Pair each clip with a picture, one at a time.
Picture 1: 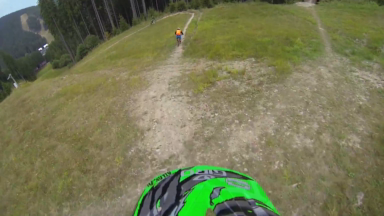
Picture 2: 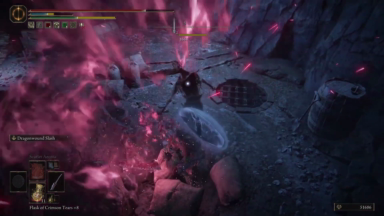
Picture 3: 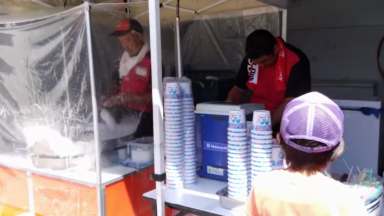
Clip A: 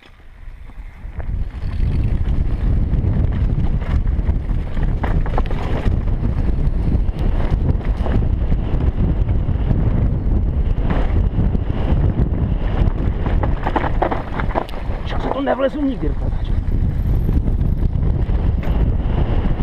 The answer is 1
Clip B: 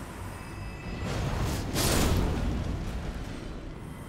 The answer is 2